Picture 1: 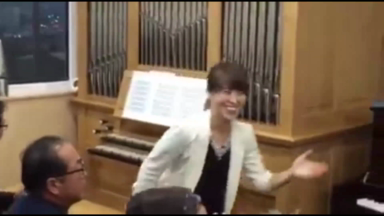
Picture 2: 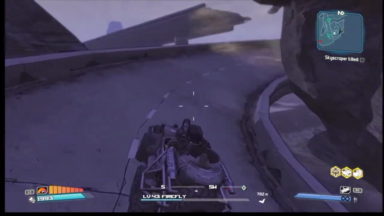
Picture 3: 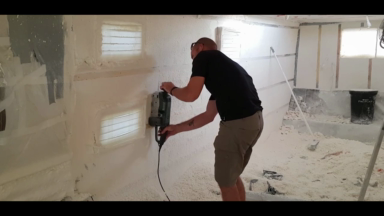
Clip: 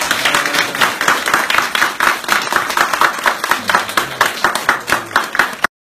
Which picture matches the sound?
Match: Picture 1